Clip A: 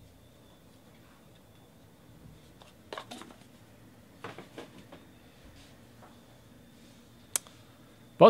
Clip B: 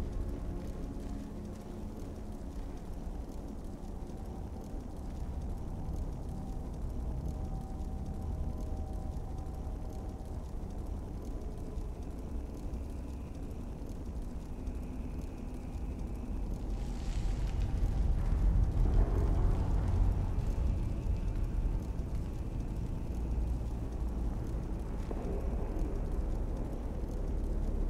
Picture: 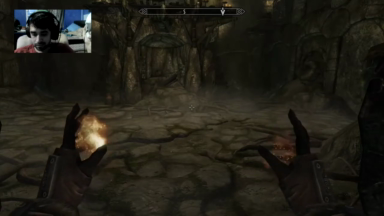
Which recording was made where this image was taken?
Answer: B